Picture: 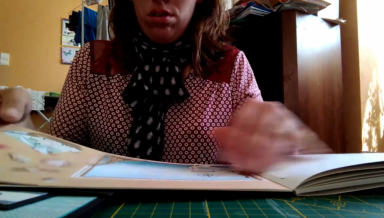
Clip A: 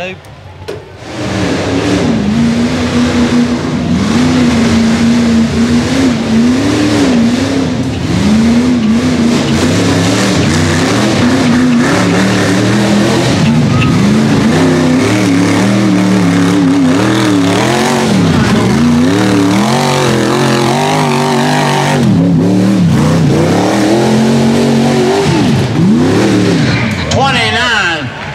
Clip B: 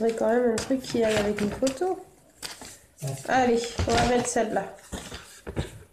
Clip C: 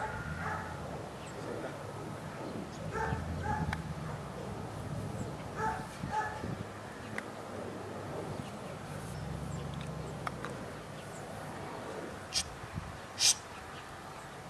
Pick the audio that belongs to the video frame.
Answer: B